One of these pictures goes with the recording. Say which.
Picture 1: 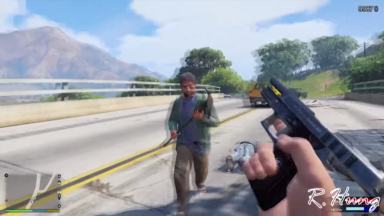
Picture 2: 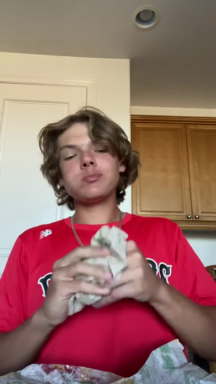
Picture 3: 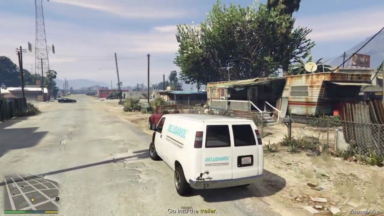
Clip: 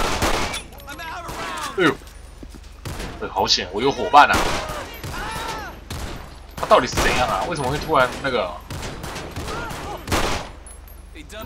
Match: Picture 1